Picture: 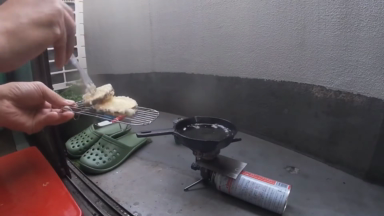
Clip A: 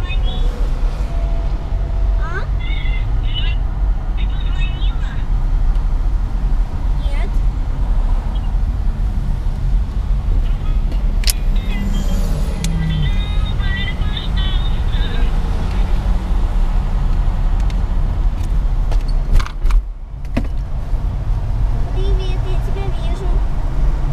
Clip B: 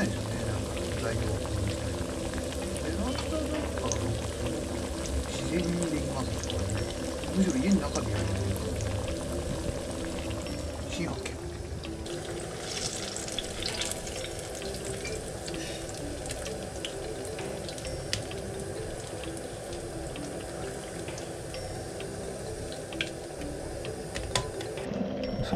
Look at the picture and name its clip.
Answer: B